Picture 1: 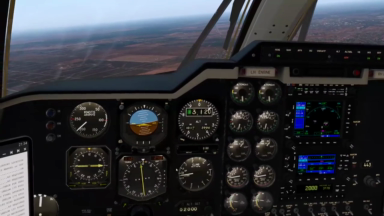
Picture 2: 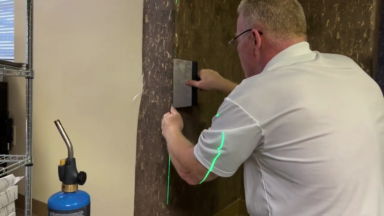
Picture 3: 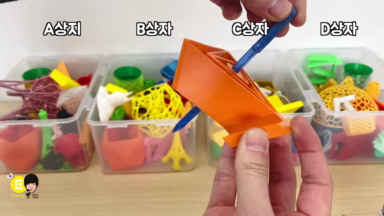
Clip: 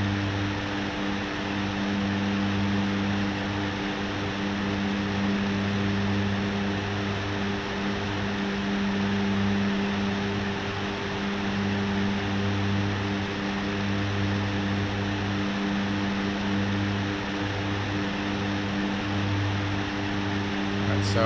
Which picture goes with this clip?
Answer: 1